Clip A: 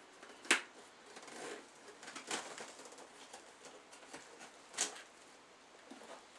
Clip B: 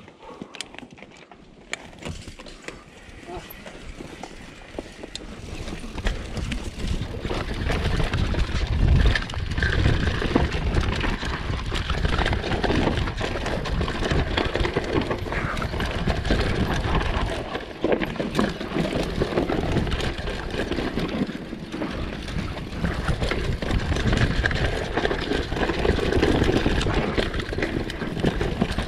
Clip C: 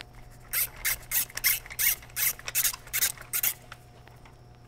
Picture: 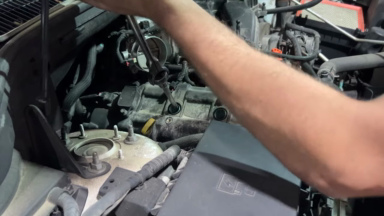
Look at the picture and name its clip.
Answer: C